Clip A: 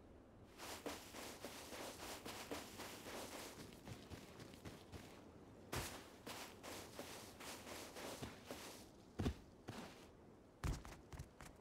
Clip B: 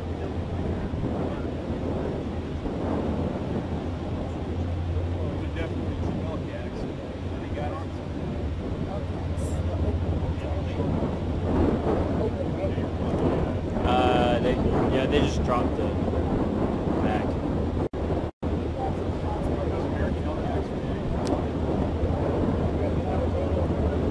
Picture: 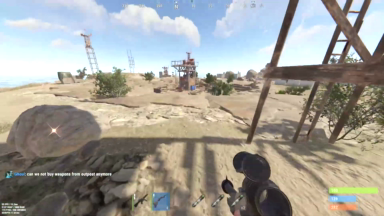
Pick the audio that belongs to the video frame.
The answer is A